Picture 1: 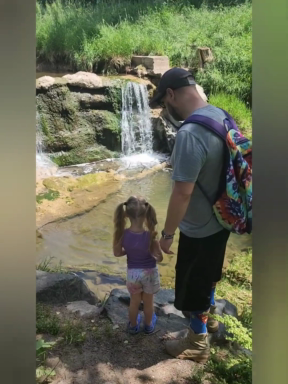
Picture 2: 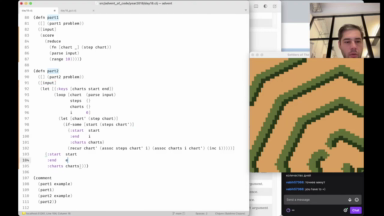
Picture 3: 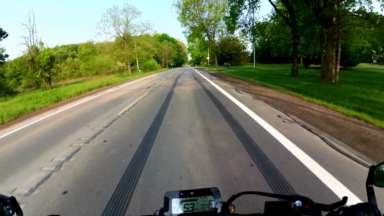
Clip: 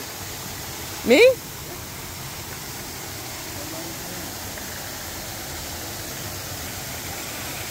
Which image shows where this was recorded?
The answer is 1